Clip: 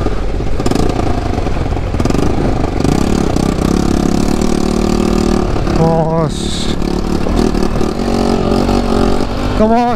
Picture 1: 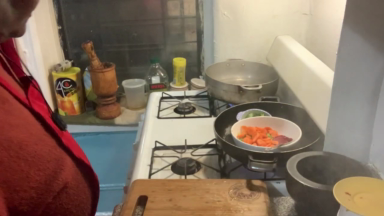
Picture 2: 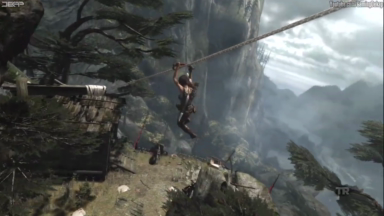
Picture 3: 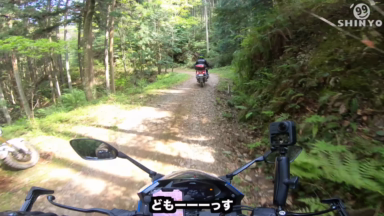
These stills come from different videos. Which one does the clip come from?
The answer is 3